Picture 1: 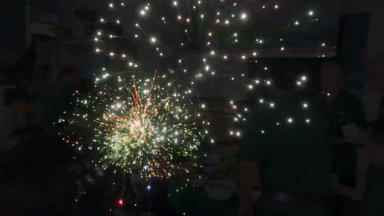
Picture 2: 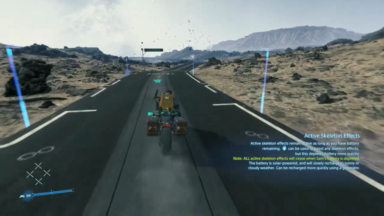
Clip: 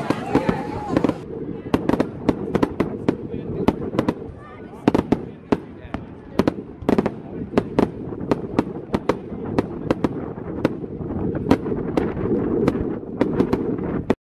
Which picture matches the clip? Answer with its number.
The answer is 1